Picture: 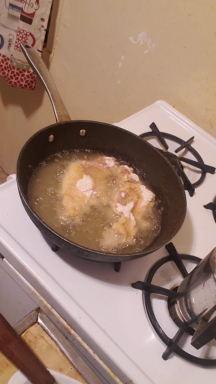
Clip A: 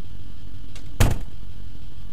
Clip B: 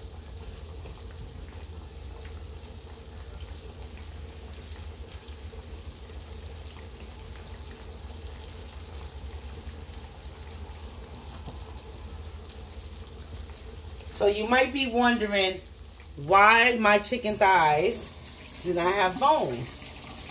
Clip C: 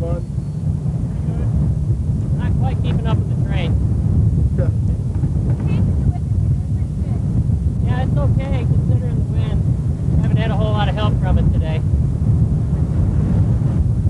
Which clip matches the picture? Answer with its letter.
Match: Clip B